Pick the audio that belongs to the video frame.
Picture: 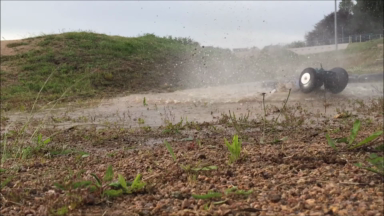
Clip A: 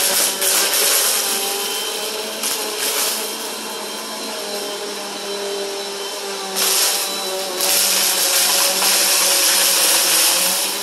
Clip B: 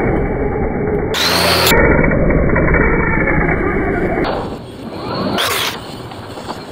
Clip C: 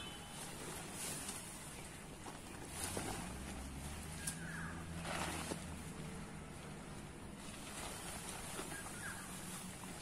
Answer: B